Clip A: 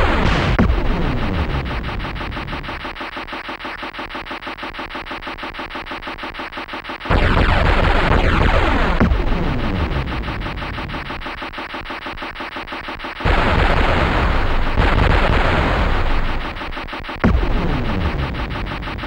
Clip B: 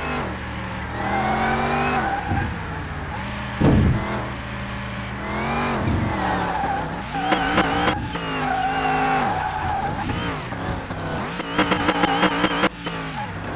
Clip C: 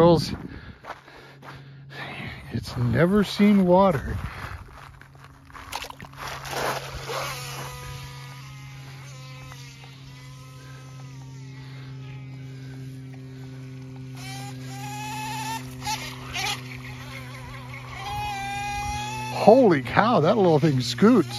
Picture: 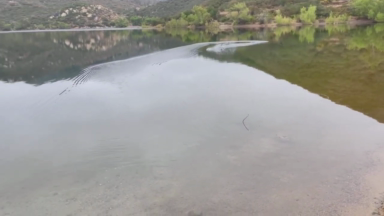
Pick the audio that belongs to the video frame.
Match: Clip C